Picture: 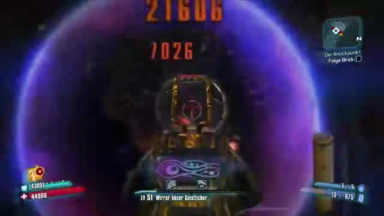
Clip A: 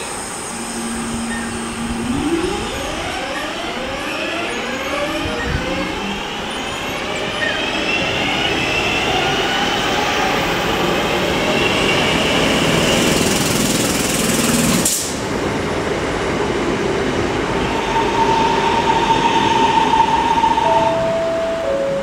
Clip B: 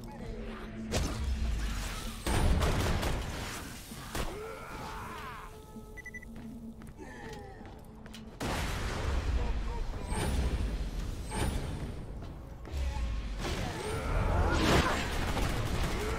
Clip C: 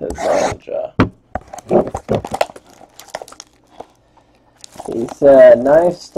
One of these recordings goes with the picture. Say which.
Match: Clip B